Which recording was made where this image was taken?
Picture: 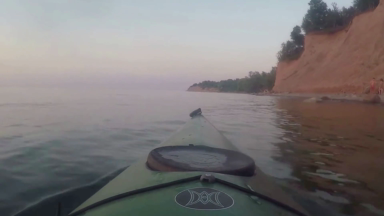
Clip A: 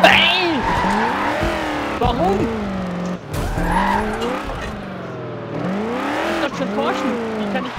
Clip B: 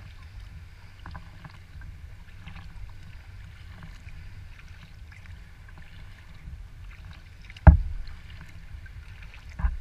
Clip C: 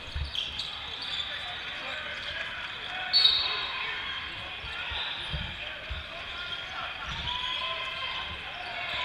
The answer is B